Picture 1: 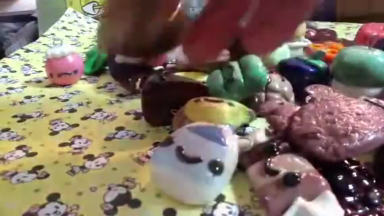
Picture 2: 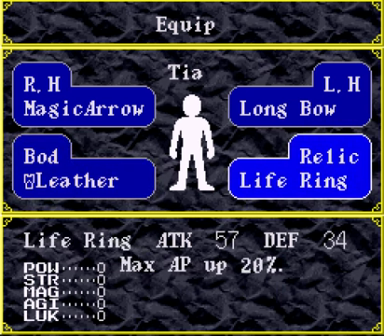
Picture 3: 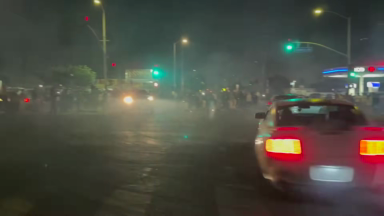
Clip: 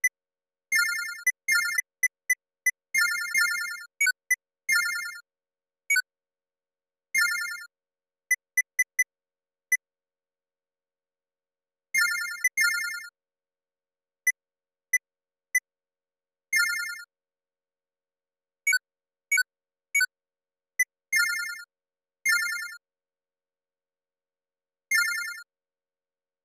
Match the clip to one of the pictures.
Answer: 2